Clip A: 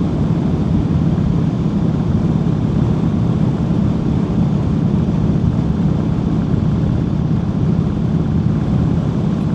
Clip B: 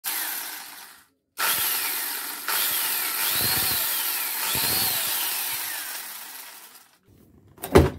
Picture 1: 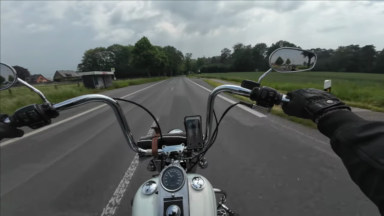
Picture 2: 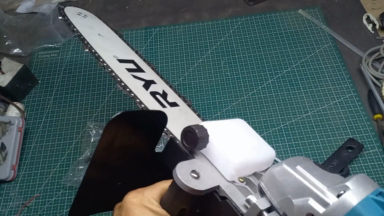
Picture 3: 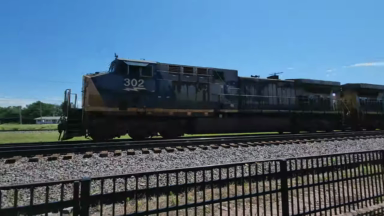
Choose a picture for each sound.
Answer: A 1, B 2